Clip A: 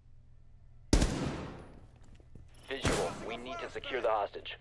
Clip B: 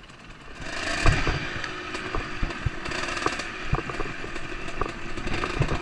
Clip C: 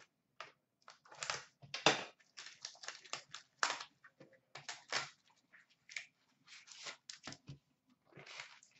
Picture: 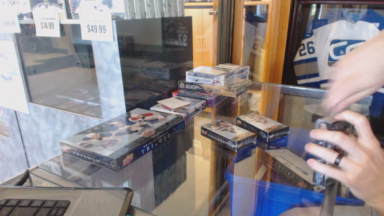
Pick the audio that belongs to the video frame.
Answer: C